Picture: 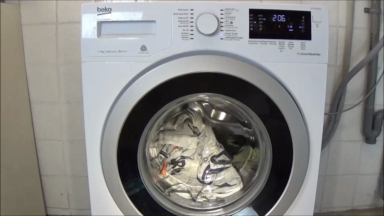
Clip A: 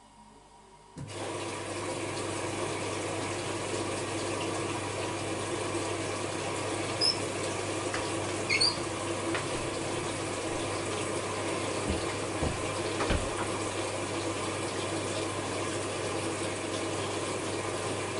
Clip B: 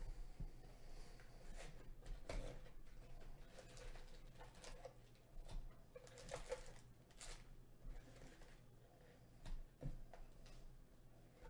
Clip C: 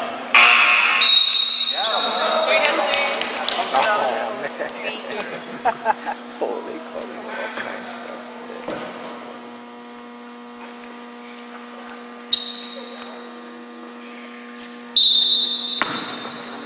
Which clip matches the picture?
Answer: A